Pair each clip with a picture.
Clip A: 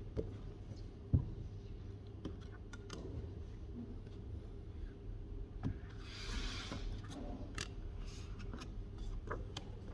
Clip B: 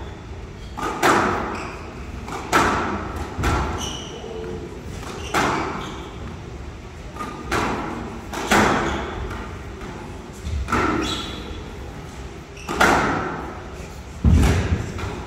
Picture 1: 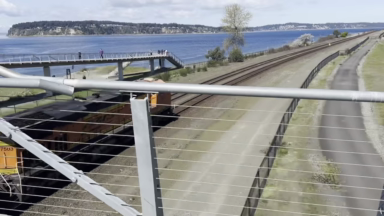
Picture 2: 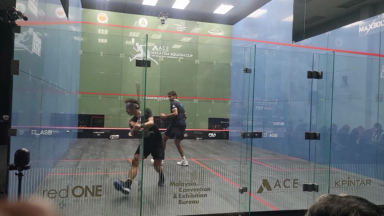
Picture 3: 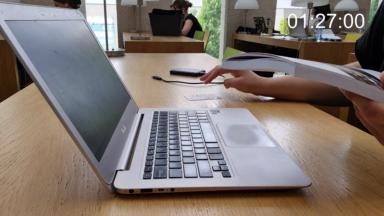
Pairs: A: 3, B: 2